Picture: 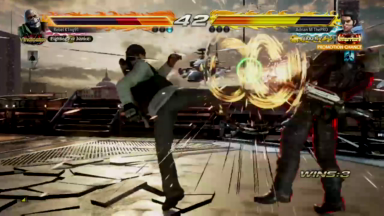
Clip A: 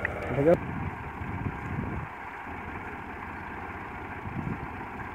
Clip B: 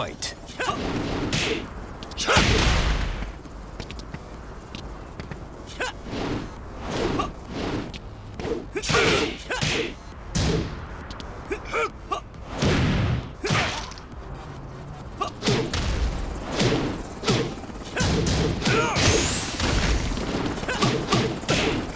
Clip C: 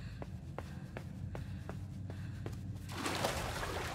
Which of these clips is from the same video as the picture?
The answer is B